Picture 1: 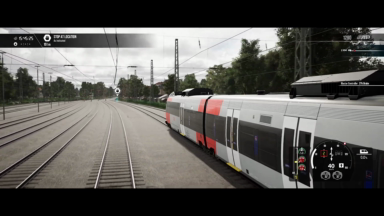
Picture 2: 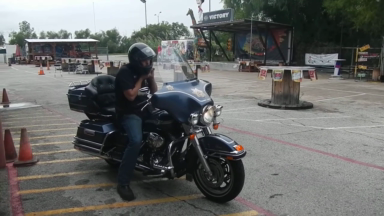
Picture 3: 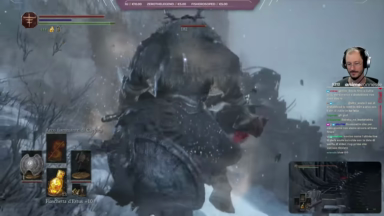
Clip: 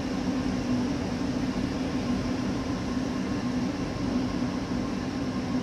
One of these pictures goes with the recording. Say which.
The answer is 1